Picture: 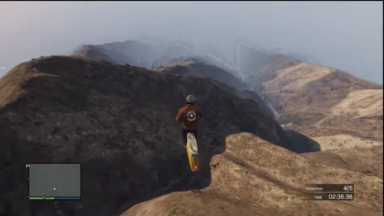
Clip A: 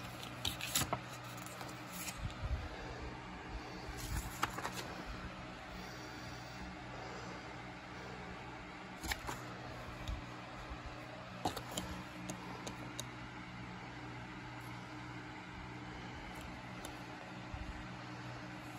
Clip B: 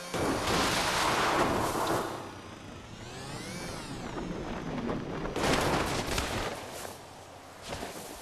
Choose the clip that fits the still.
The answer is B